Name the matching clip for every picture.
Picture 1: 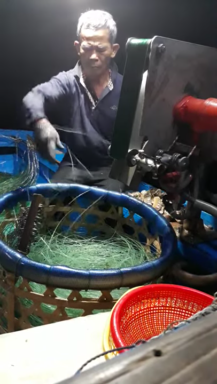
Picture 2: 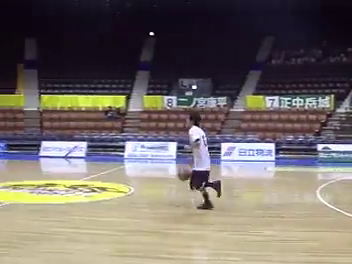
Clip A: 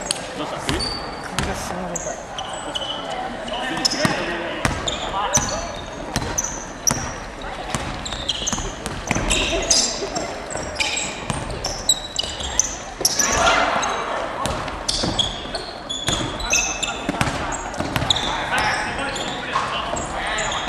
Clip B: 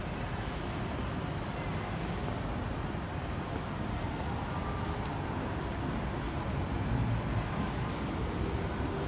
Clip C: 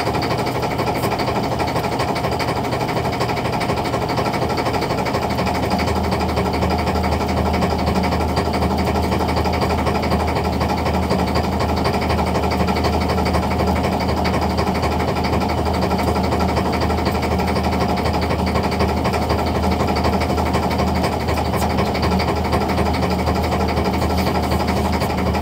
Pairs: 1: C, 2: A